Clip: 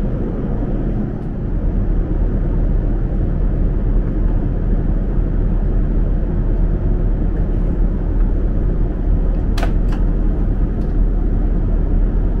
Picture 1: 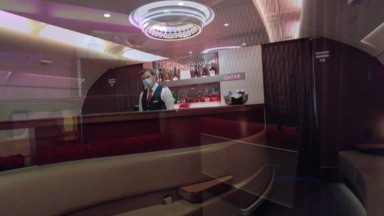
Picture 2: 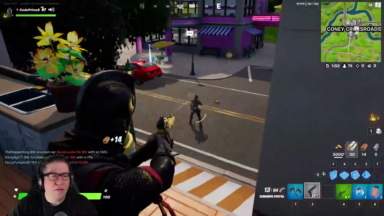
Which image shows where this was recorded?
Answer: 1